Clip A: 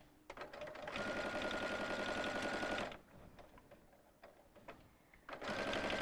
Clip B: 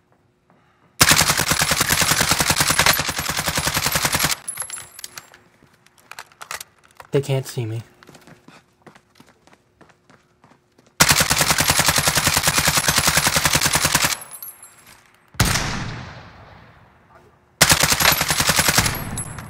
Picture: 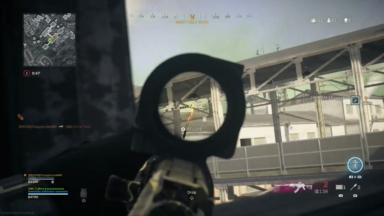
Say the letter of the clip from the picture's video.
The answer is B